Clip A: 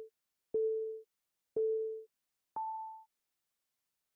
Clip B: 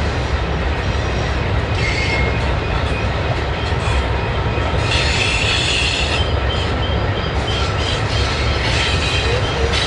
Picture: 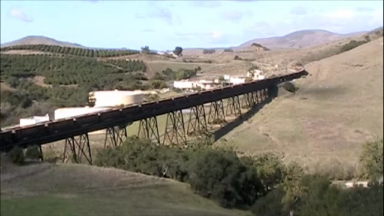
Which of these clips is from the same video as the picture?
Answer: B